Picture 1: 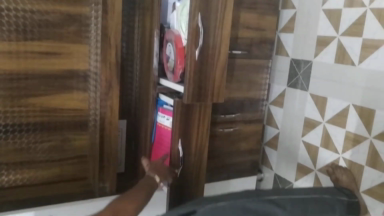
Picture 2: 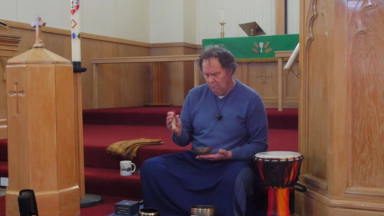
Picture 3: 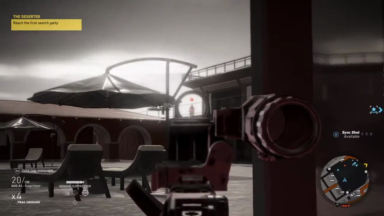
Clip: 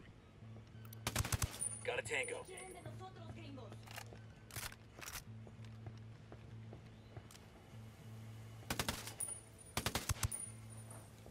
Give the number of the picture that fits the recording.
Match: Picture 3